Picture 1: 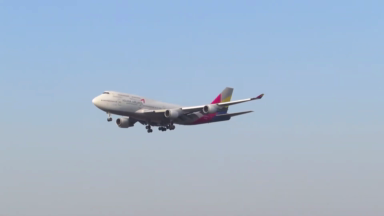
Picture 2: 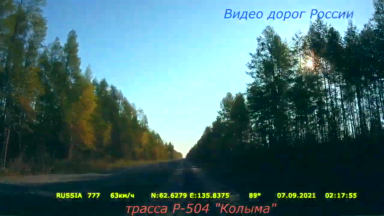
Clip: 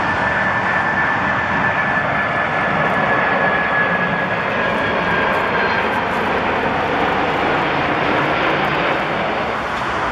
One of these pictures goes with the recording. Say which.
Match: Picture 1